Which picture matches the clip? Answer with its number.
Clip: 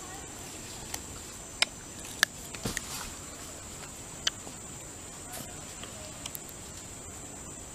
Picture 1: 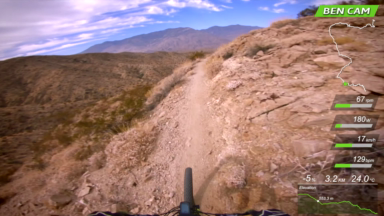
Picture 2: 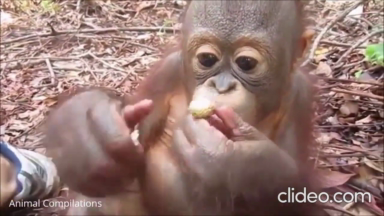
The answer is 2